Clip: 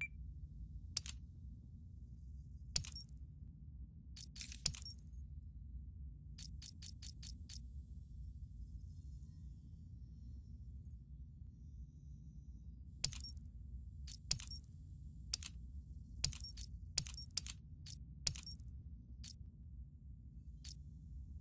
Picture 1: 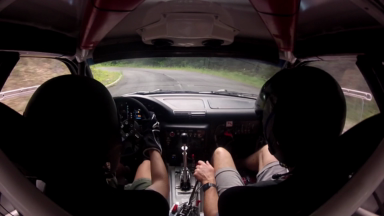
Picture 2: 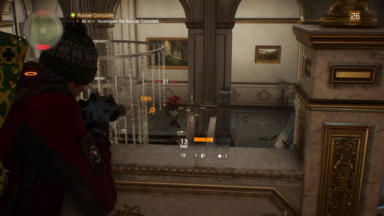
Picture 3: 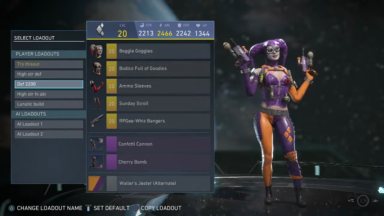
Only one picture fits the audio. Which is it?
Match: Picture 3